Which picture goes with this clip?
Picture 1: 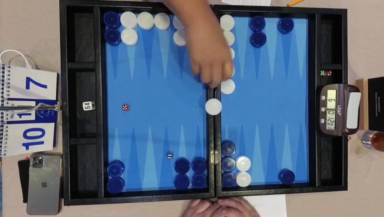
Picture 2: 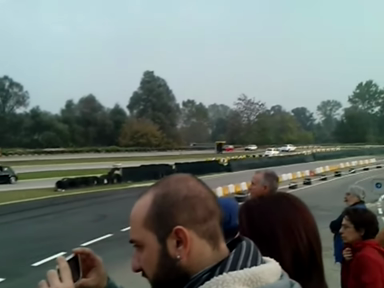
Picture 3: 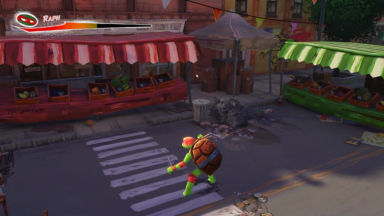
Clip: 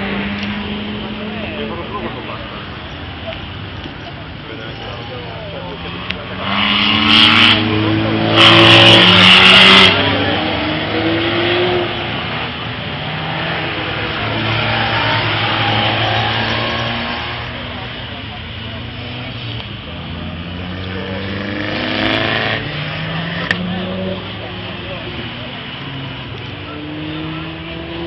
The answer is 2